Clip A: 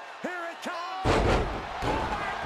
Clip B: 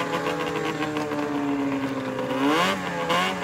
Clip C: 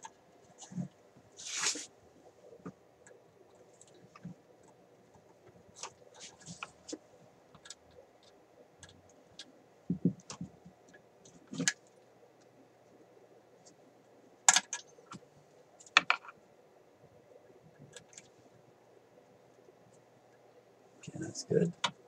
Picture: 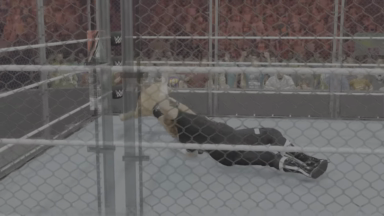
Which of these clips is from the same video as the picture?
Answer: A